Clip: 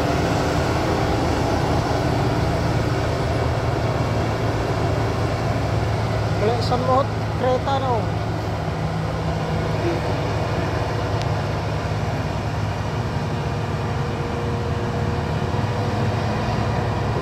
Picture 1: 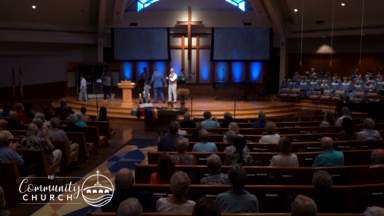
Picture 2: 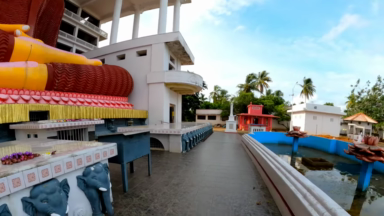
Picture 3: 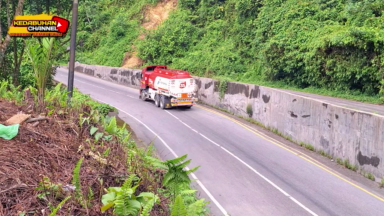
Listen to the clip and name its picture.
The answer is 3